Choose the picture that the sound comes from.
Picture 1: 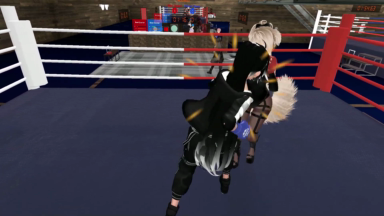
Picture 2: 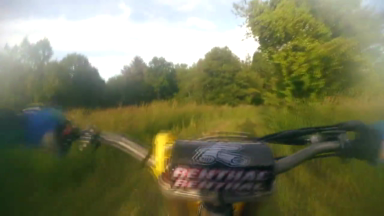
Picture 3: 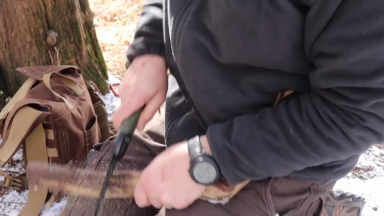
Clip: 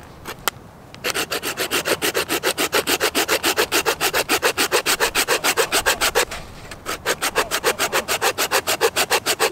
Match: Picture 3